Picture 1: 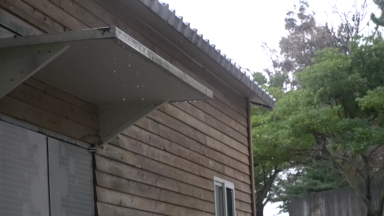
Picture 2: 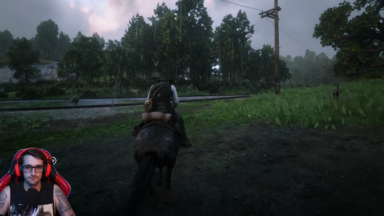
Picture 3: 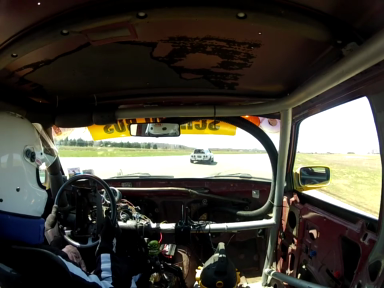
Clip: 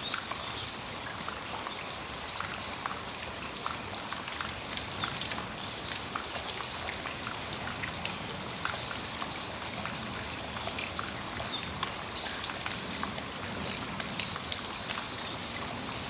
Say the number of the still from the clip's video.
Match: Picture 1